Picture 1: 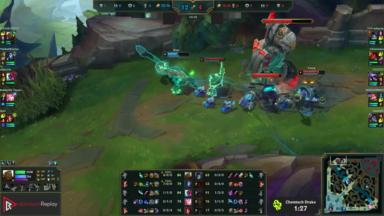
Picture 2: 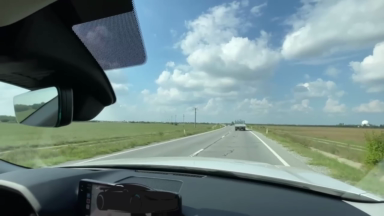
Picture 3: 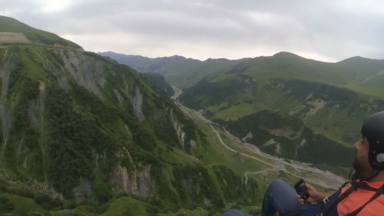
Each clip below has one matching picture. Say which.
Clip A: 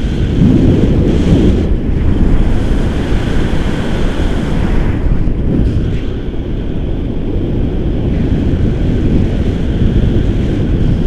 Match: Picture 3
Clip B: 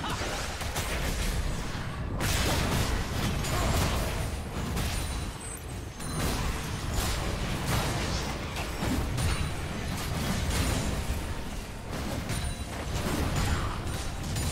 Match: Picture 1